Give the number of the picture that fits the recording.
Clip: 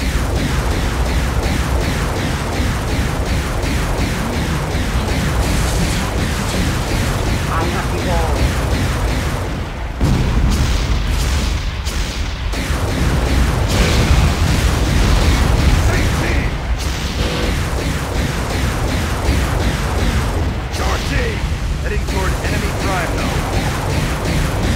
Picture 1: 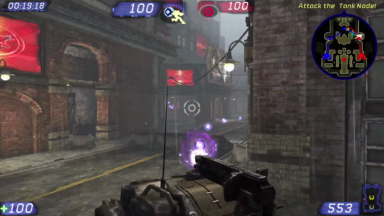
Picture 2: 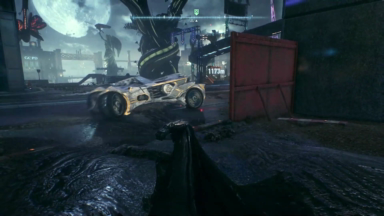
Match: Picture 1